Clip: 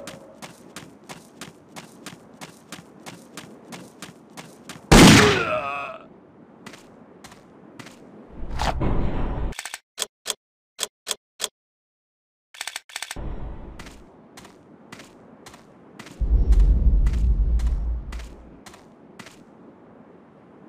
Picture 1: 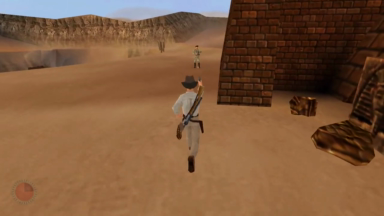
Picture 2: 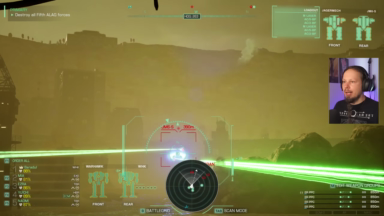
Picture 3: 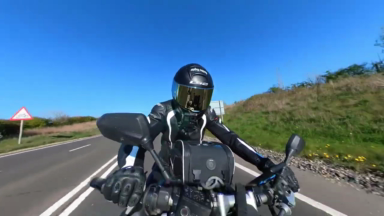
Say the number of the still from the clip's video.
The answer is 1